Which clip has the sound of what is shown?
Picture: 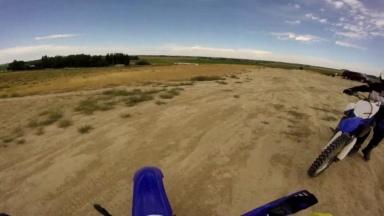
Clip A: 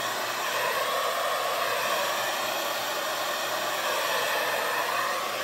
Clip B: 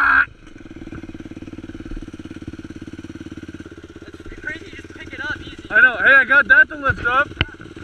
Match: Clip B